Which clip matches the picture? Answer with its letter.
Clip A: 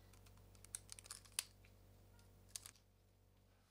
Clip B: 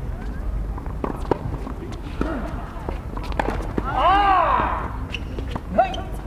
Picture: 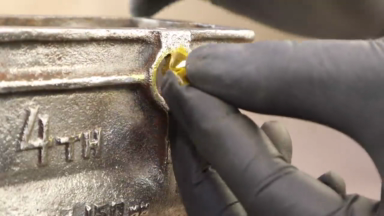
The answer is A